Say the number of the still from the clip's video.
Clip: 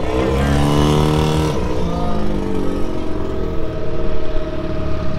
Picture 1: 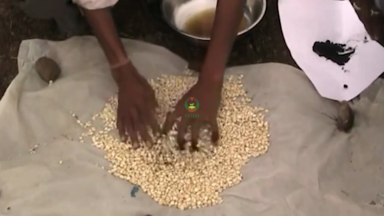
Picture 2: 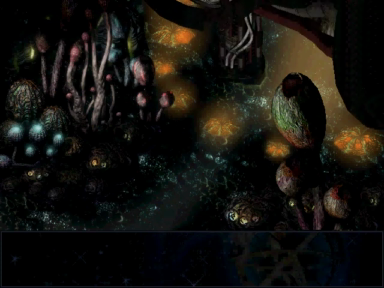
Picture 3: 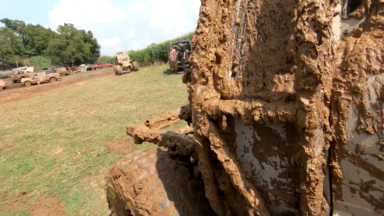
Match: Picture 3